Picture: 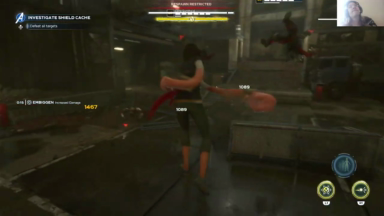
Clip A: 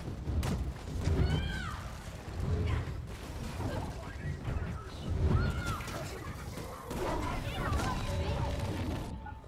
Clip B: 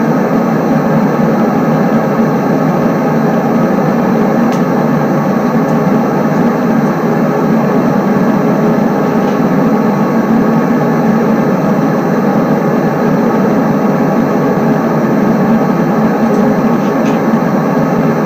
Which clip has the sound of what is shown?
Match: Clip A